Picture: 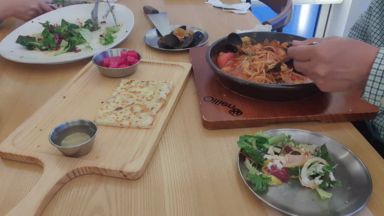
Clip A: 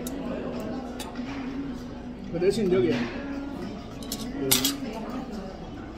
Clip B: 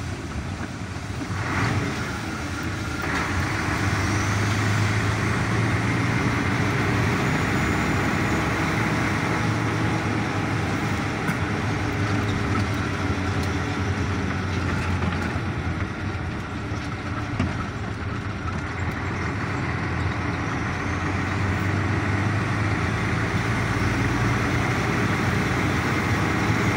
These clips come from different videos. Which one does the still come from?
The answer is A